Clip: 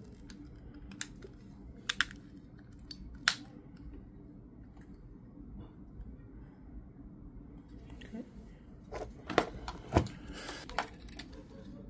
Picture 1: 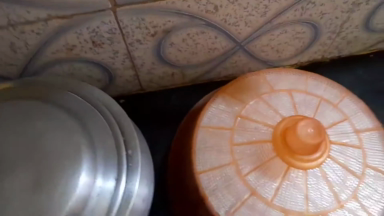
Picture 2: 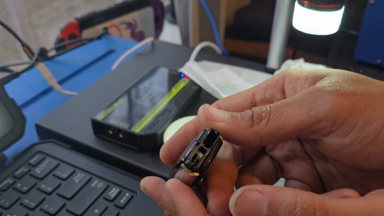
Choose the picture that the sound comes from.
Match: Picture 2